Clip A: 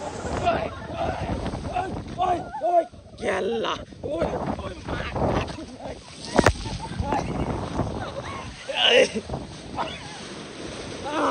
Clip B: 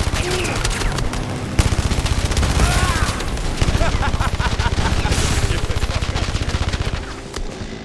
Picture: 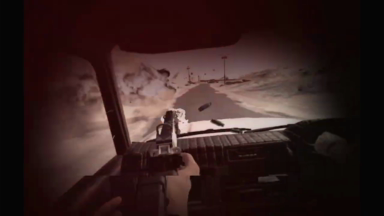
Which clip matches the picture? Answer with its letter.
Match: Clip B